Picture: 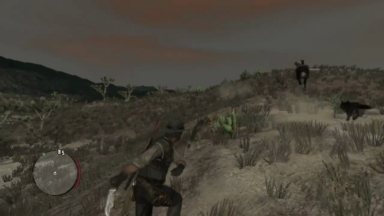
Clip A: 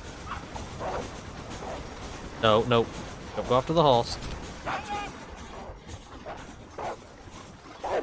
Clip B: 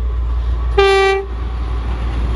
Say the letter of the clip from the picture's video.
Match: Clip A